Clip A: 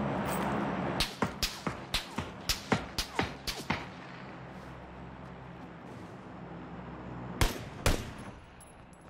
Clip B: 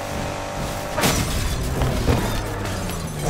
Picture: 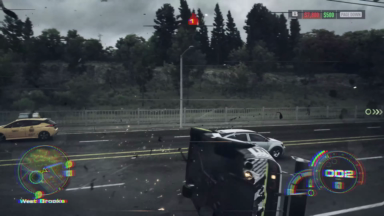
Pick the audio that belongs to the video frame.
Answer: B